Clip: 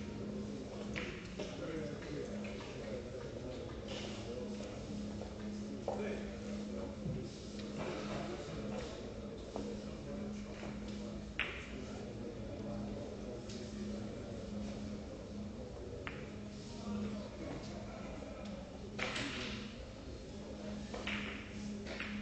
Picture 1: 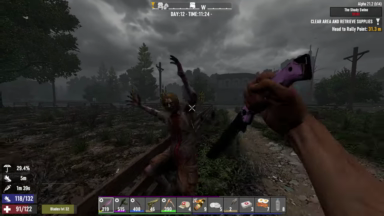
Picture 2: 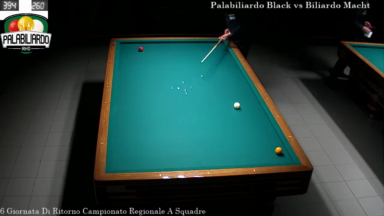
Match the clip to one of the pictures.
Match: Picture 2